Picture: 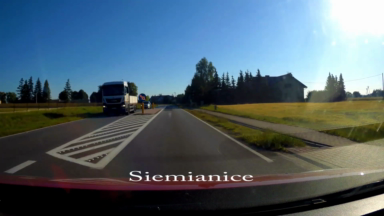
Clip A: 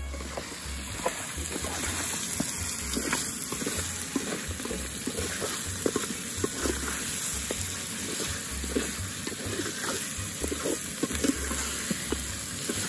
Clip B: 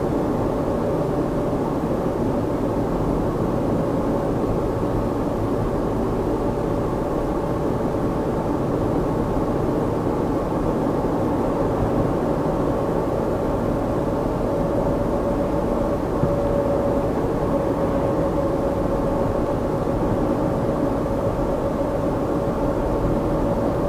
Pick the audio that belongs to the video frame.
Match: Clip B